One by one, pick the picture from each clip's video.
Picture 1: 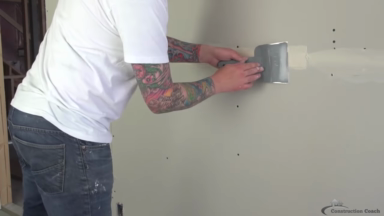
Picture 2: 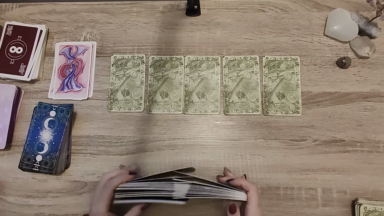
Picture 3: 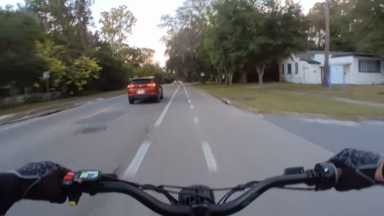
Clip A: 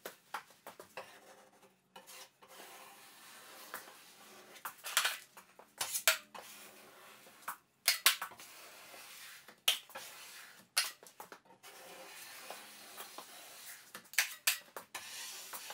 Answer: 1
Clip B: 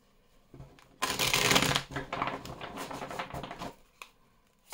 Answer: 2